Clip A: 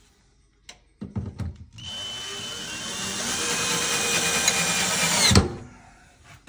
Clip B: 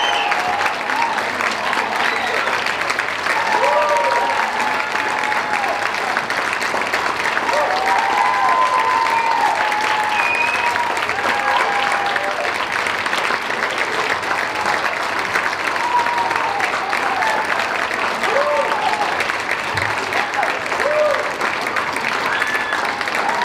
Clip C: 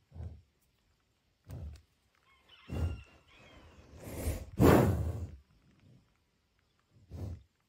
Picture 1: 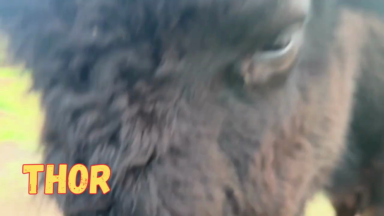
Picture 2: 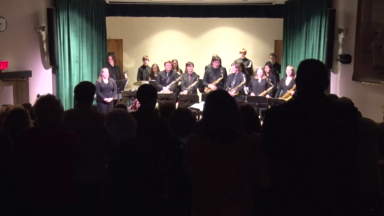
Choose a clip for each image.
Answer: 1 C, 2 B